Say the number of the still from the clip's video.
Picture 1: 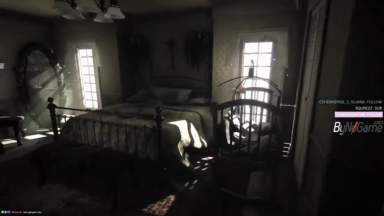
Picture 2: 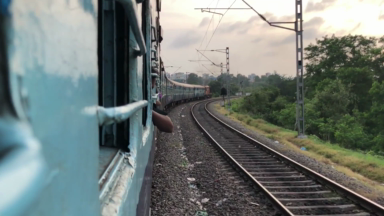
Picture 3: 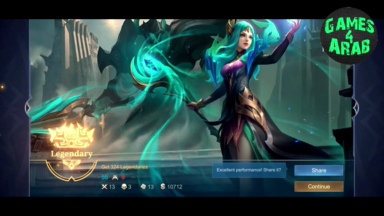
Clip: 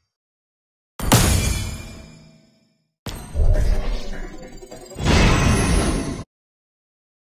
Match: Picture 3